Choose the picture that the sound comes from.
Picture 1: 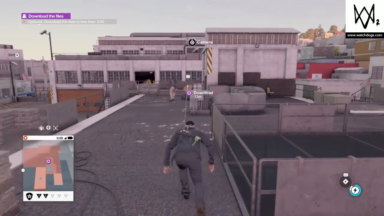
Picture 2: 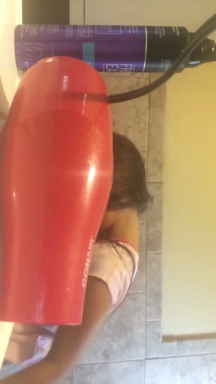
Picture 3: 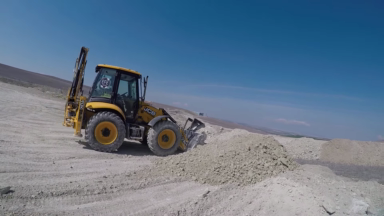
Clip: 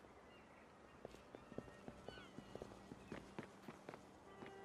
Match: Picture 1